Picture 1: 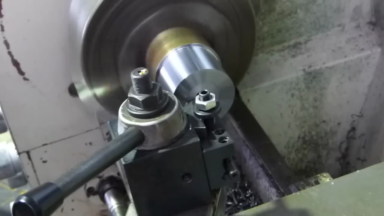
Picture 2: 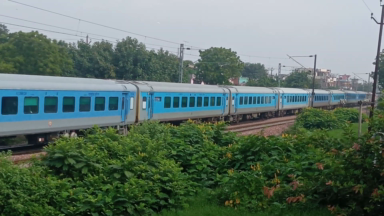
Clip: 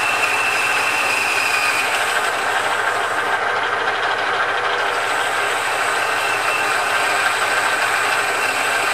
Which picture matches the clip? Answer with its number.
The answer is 1